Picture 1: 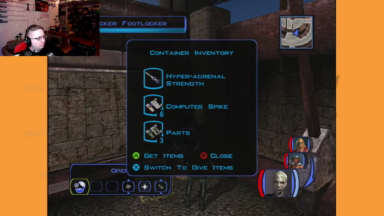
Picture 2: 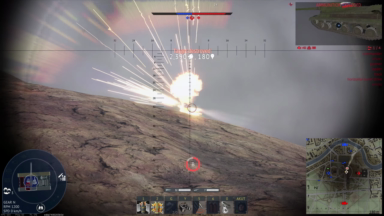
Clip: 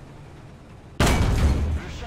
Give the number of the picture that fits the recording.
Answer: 2